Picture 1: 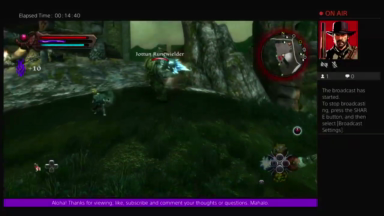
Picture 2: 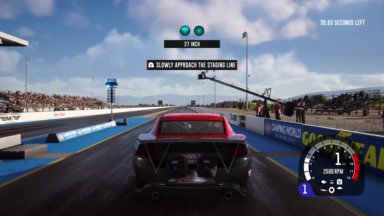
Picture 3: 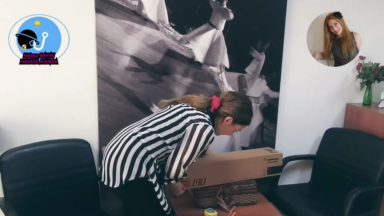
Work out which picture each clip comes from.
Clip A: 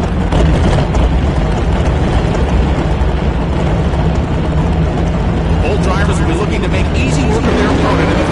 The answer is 2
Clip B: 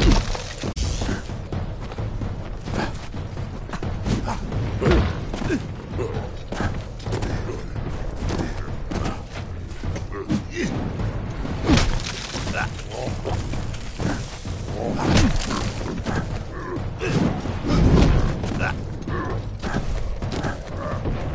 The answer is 1